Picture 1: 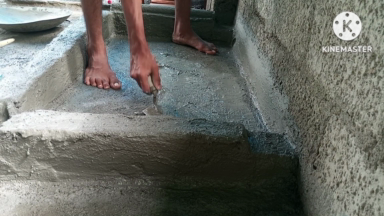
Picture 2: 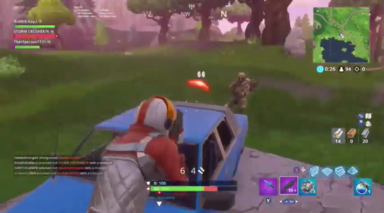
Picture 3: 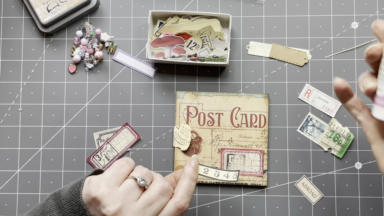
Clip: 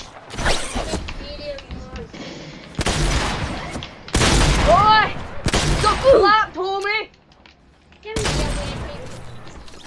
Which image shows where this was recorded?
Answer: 2